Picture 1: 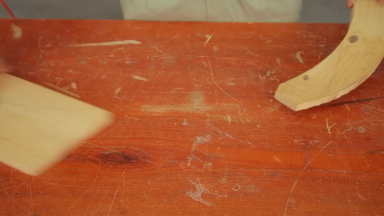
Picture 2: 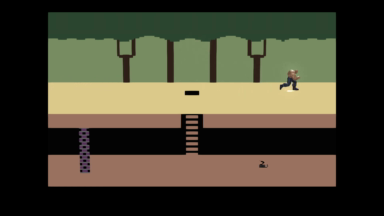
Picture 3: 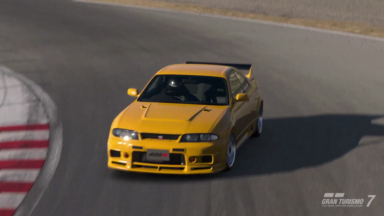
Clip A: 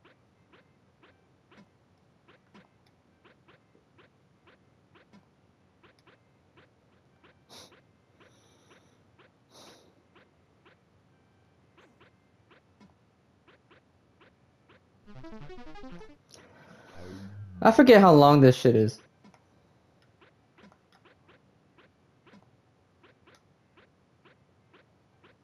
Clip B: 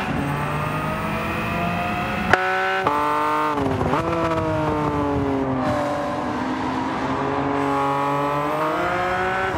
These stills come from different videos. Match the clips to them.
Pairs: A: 2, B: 3